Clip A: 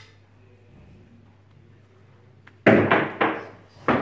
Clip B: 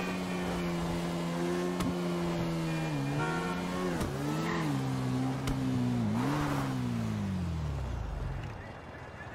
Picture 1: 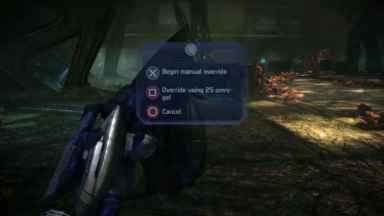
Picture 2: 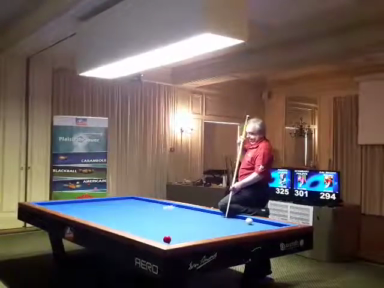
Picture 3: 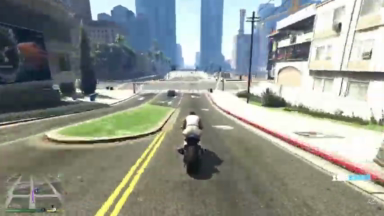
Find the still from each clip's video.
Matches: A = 2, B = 3